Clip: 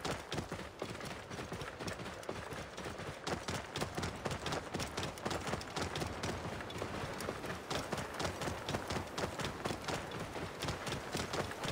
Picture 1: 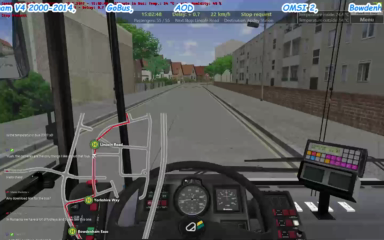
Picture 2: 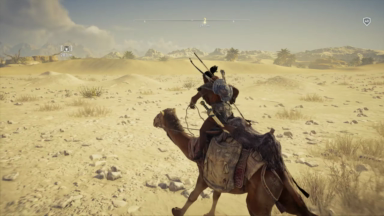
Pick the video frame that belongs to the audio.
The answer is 2